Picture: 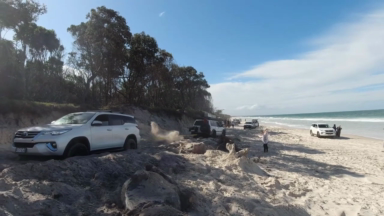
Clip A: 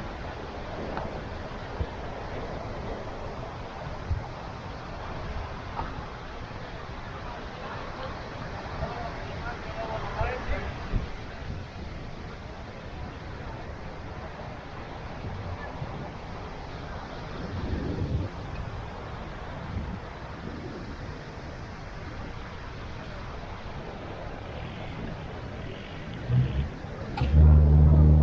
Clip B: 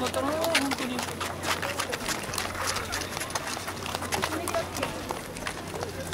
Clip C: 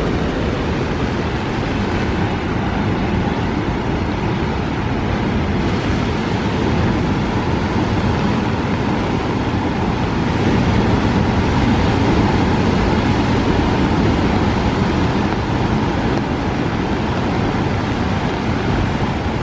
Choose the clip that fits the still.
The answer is A